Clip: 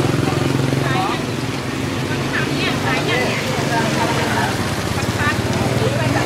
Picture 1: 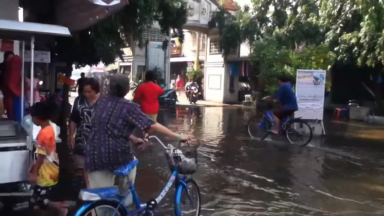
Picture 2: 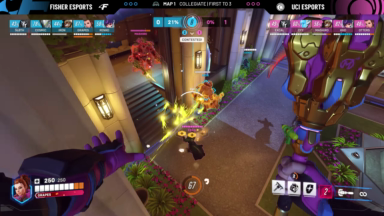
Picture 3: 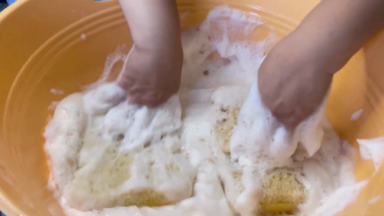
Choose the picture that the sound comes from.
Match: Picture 1